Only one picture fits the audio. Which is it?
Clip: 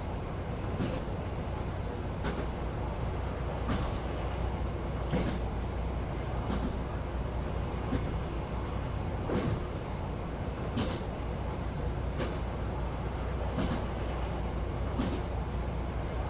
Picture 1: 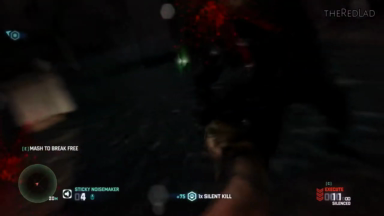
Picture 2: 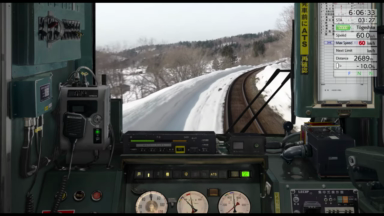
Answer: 2